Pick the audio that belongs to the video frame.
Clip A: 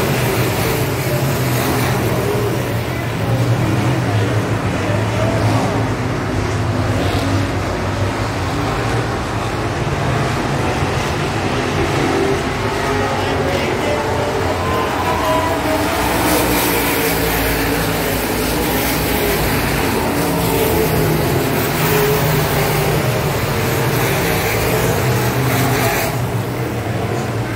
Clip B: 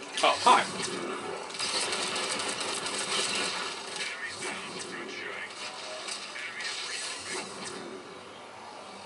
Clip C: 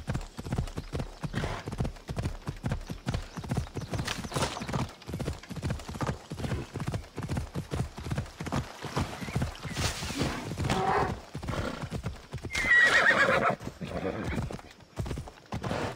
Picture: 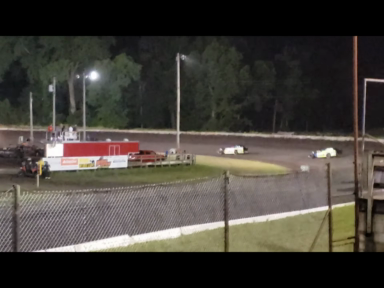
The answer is A